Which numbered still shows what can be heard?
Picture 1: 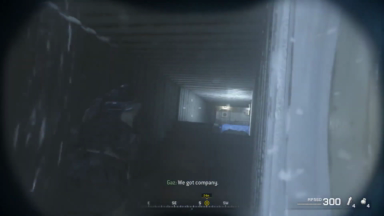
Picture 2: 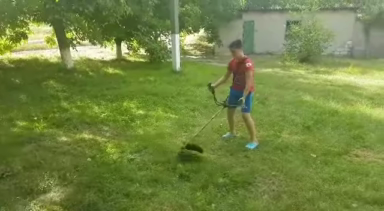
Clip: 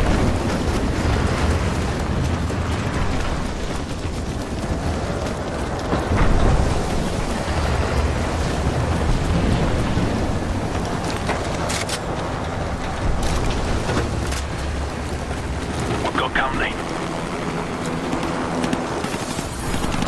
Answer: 1